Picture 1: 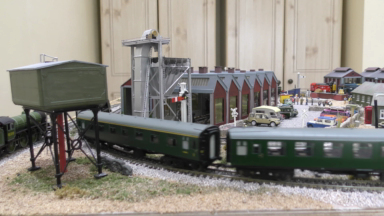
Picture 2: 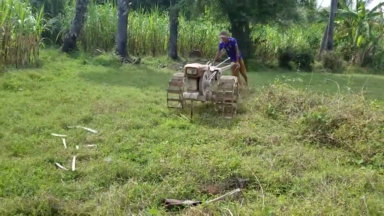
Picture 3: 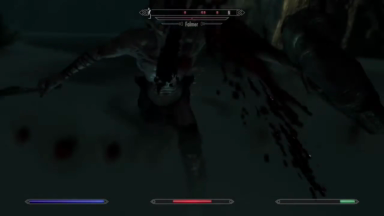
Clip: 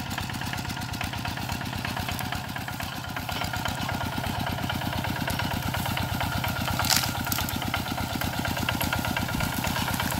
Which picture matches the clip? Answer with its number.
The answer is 2